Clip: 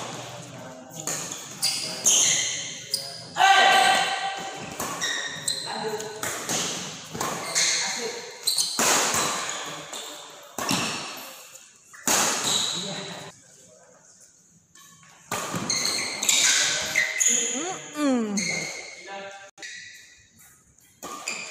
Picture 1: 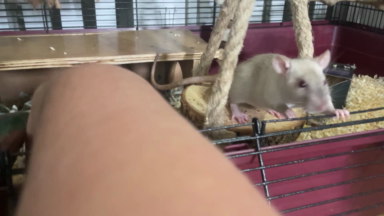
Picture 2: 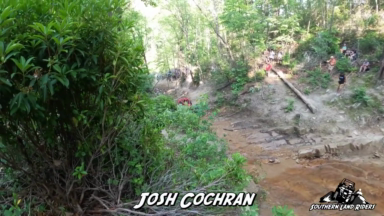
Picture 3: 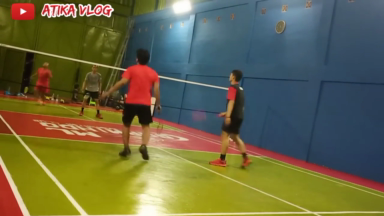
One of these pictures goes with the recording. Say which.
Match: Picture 3